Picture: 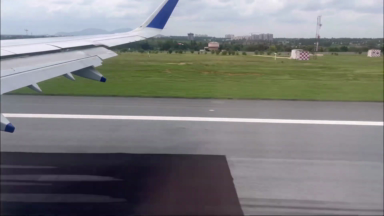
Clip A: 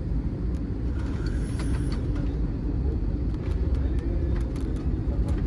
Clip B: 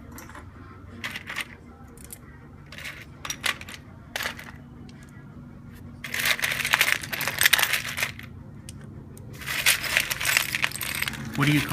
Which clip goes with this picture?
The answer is A